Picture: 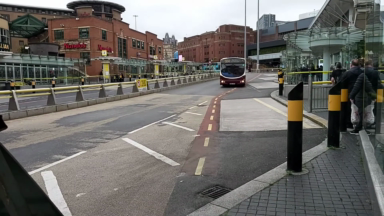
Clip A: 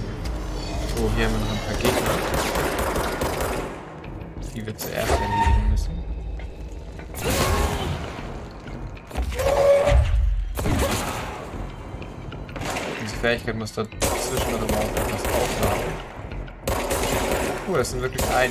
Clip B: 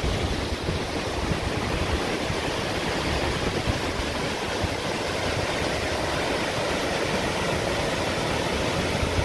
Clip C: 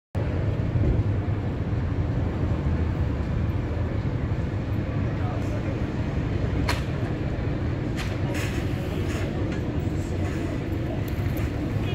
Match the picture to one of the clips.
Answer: C